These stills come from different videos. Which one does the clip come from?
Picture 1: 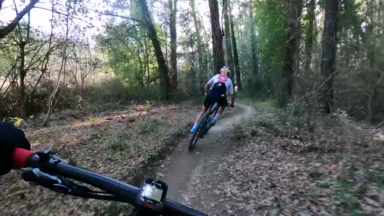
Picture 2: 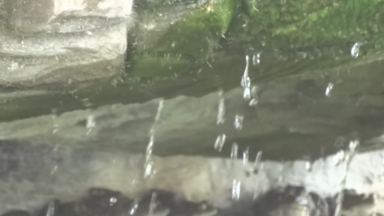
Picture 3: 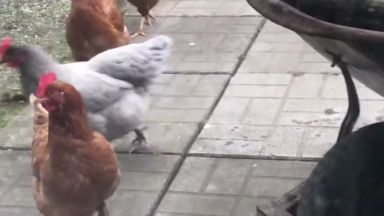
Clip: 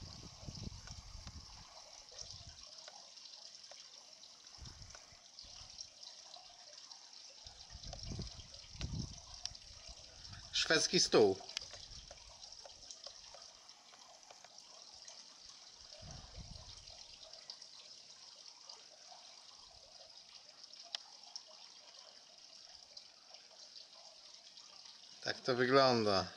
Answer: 2